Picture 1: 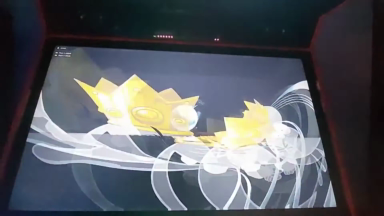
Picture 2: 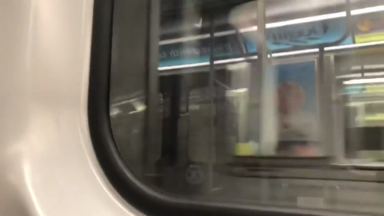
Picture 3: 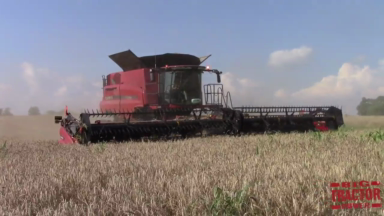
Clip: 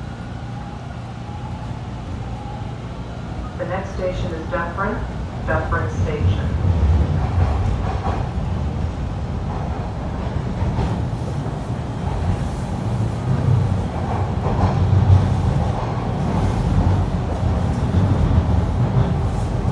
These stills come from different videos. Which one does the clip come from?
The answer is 2